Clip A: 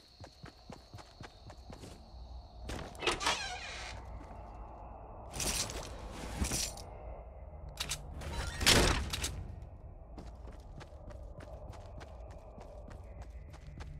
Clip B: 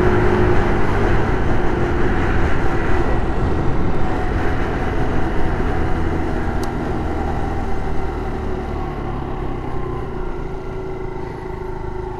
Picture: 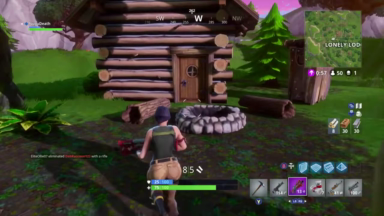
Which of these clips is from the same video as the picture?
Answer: A